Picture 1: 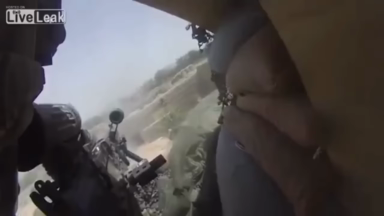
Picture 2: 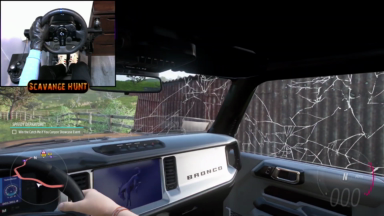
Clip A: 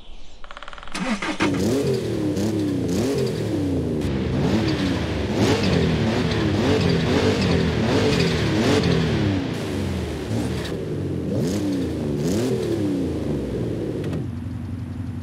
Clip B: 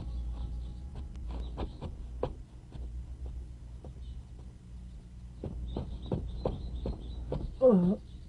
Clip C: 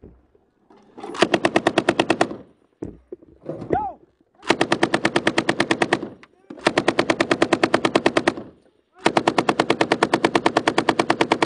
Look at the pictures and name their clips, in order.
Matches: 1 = C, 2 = A